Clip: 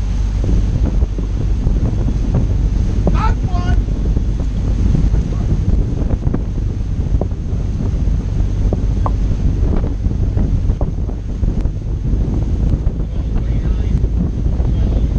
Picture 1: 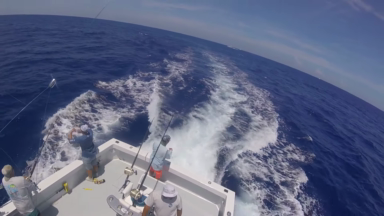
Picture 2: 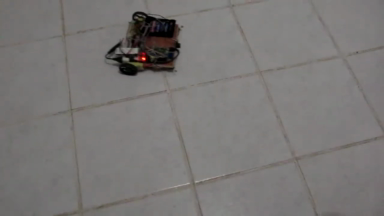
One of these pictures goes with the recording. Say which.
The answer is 1